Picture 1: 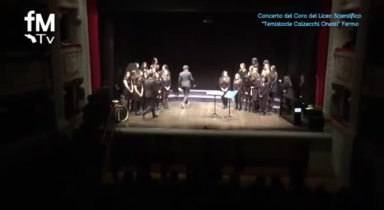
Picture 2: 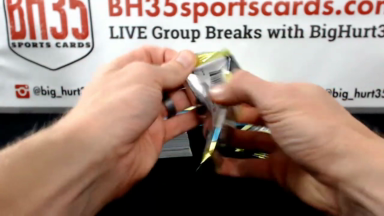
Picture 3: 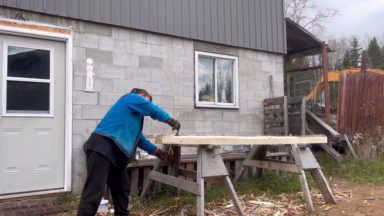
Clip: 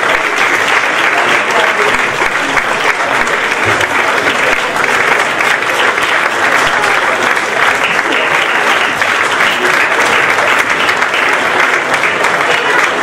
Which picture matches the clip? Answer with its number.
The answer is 1